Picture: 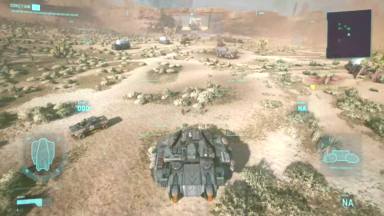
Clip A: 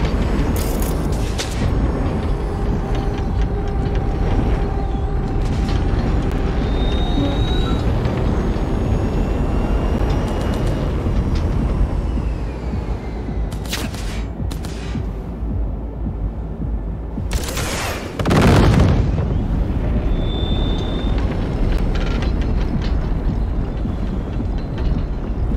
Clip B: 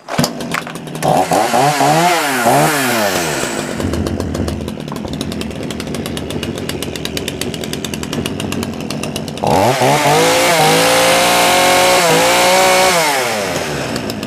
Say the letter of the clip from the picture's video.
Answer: A